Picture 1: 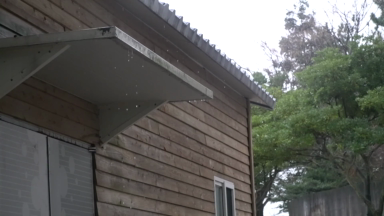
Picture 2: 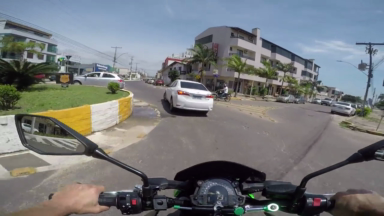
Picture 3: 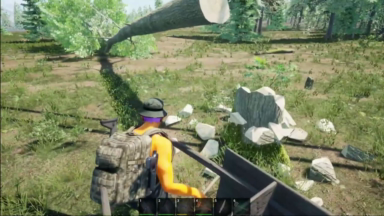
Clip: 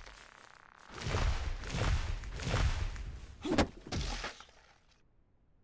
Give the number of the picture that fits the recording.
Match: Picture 3